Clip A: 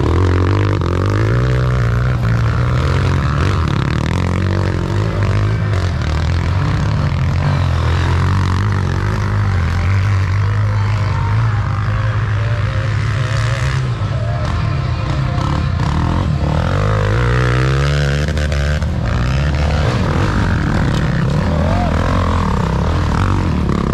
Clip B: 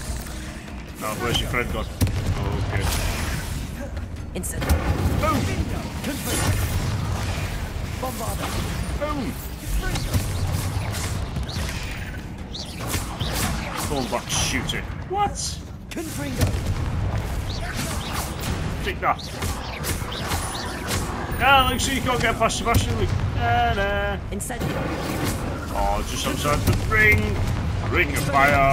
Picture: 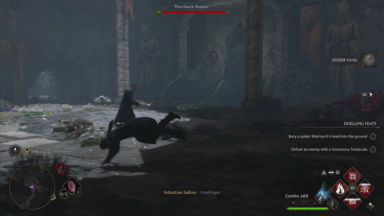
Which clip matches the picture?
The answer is B